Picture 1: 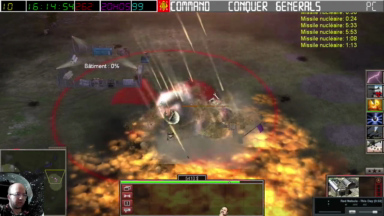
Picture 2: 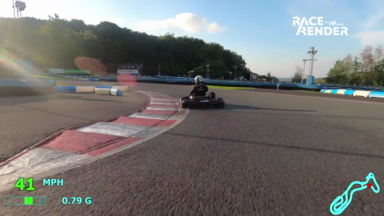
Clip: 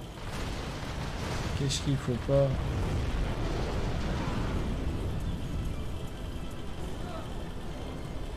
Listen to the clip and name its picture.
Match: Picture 1